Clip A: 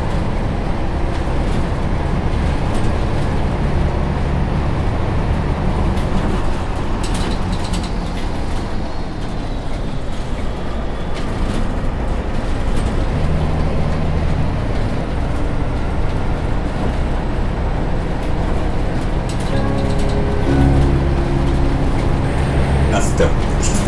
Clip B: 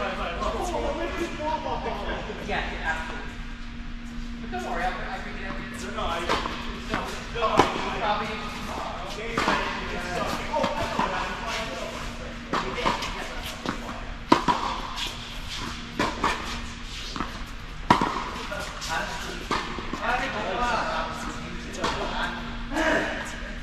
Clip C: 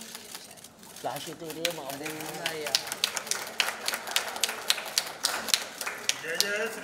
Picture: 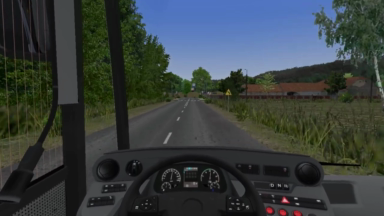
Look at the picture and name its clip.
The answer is A